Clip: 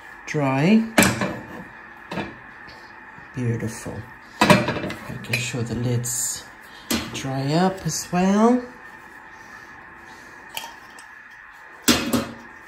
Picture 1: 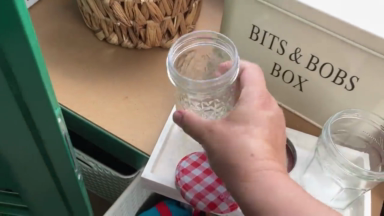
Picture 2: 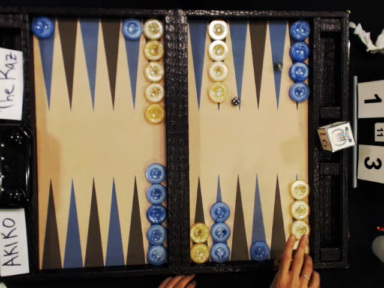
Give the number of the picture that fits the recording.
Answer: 1